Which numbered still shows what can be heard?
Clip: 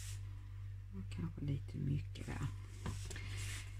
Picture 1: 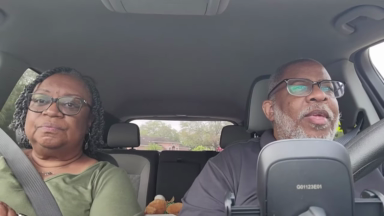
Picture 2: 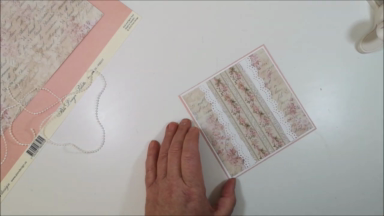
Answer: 2